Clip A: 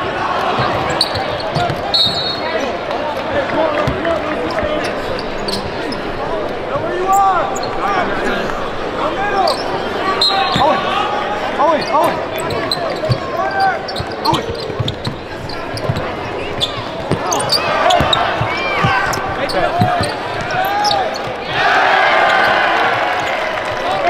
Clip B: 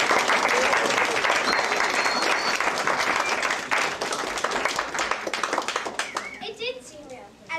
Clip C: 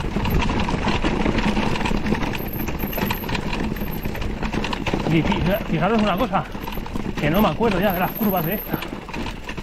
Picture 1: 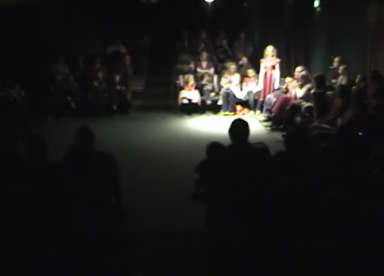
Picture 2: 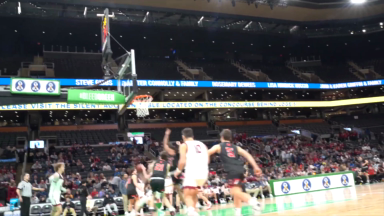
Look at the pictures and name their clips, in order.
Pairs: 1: B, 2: A